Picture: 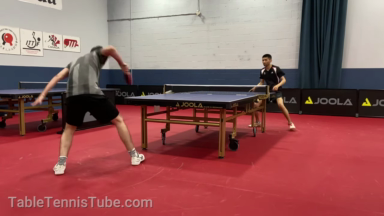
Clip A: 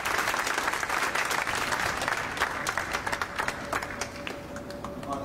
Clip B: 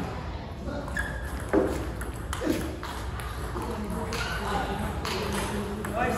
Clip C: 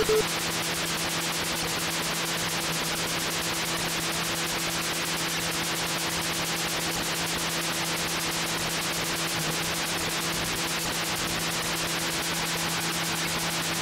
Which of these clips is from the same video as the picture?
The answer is B